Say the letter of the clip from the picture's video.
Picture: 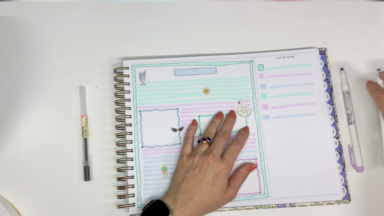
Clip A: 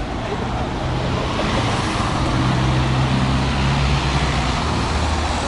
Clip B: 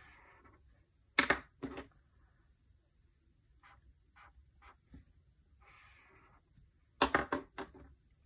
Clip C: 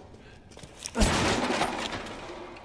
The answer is B